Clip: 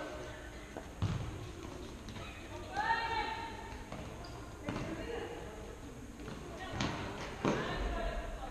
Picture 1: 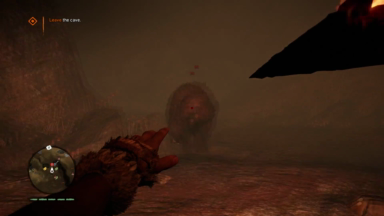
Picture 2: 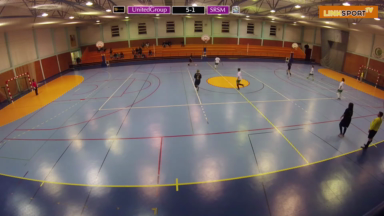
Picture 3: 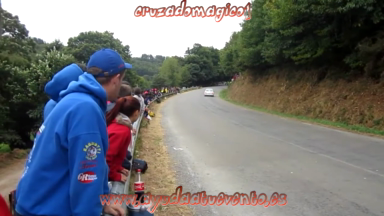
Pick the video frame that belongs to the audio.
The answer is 2